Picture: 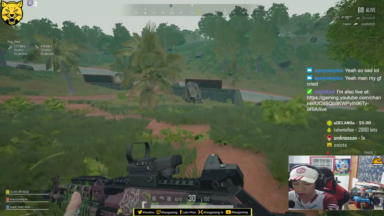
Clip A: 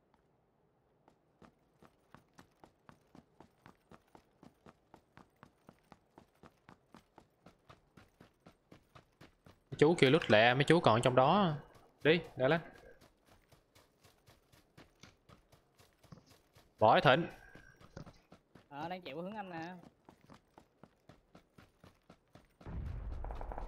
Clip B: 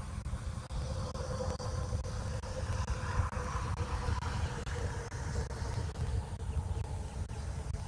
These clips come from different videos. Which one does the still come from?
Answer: A